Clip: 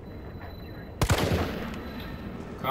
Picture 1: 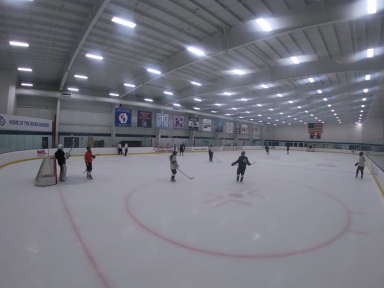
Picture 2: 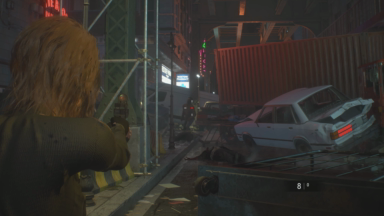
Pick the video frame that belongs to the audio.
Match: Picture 2